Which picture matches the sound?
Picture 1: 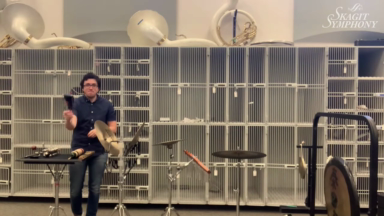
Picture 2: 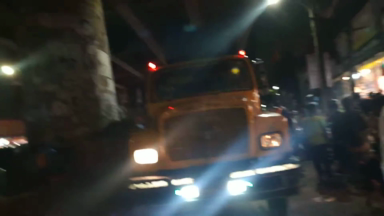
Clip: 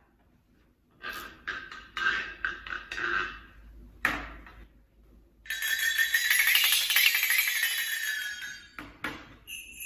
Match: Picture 1